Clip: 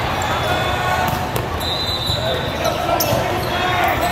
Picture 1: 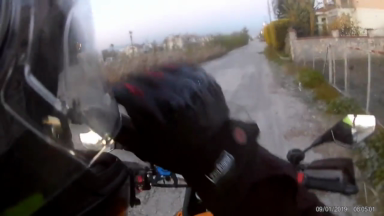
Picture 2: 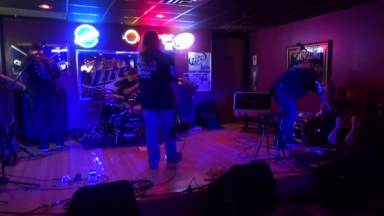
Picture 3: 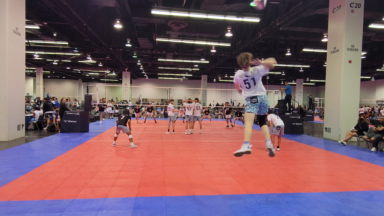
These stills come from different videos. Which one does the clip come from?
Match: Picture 3